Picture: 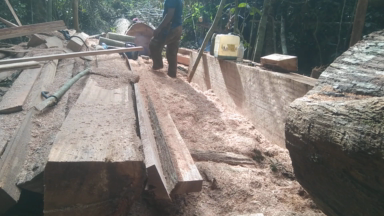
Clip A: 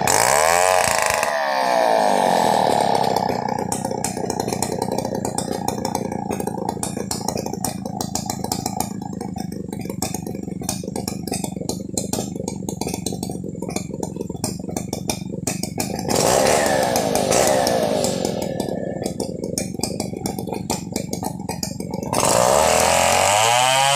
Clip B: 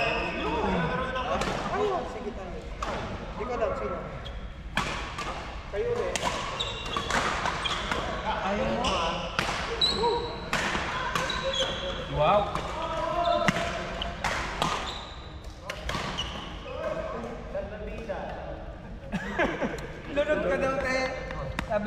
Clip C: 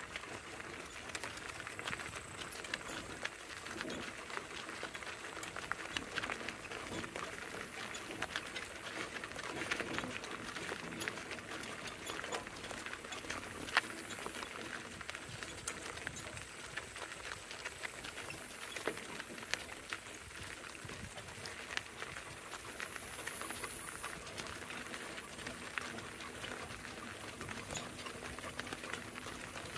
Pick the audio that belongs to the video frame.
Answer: A